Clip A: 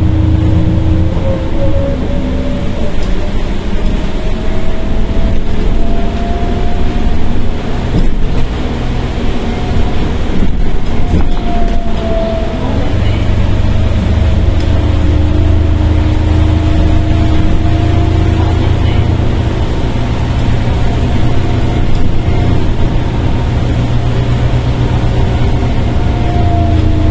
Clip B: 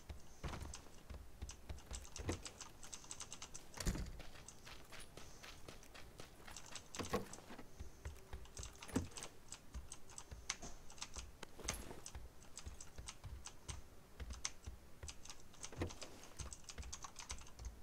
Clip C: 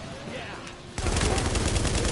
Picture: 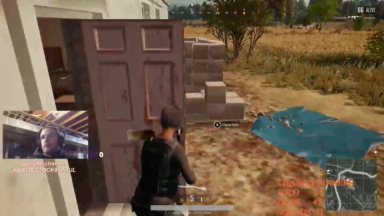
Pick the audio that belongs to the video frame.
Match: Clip B